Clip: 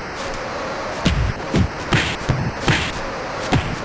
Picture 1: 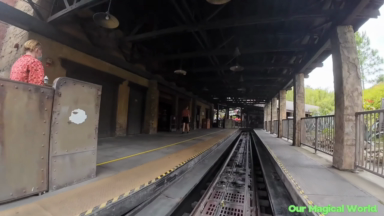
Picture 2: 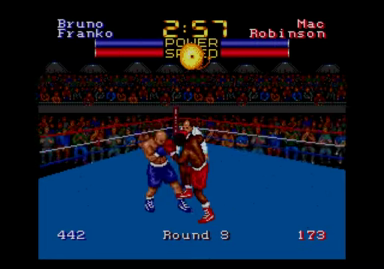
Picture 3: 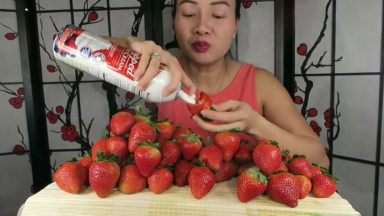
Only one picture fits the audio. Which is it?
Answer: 2